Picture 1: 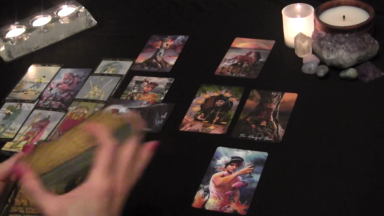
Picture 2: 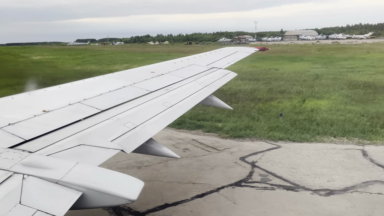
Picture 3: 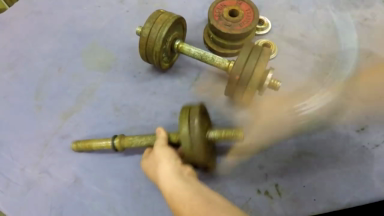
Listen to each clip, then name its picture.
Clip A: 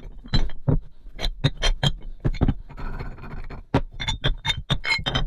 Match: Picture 3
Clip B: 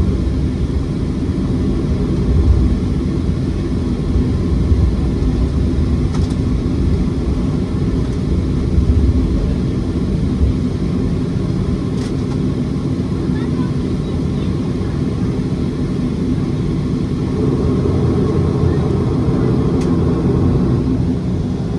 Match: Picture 2